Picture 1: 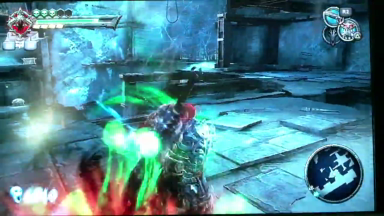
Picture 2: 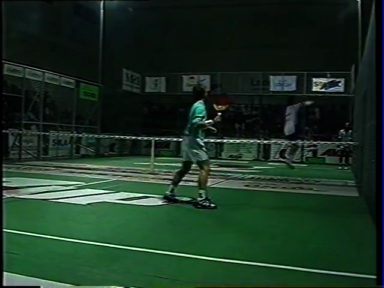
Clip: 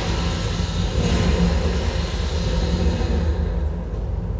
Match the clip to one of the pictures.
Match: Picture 1